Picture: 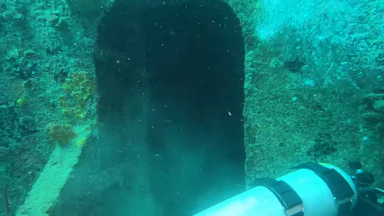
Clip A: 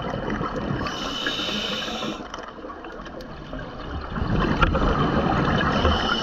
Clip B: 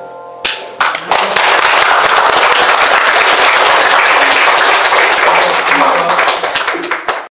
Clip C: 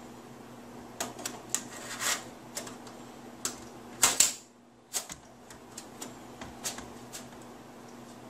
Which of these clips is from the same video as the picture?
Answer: A